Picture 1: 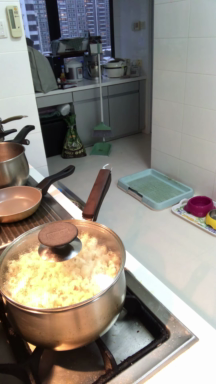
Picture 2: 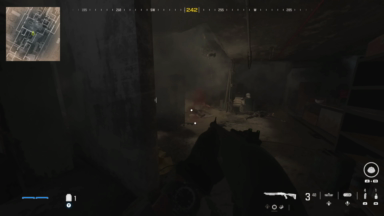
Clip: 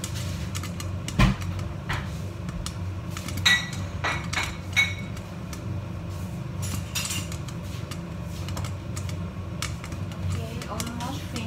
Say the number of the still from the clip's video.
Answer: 1